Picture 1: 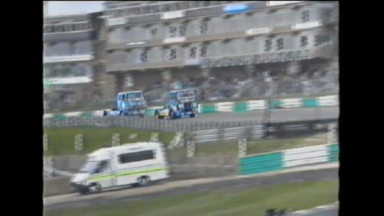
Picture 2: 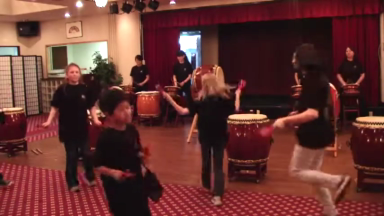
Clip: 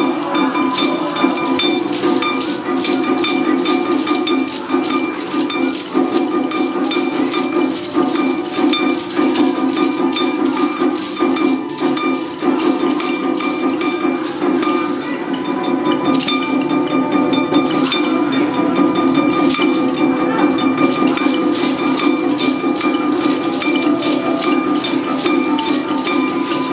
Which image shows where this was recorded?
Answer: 2